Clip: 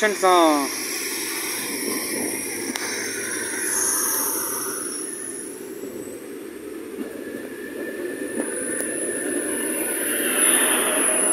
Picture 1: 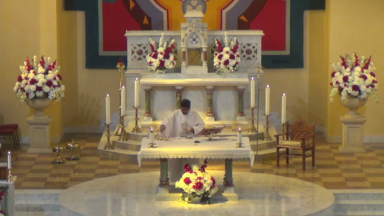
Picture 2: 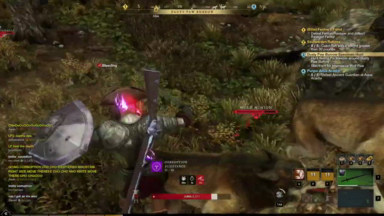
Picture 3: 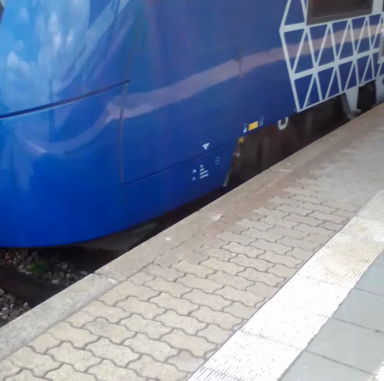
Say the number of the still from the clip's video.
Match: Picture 3